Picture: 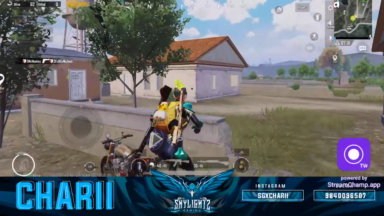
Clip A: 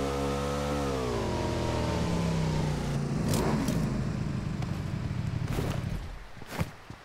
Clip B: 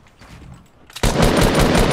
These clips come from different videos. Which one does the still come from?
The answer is A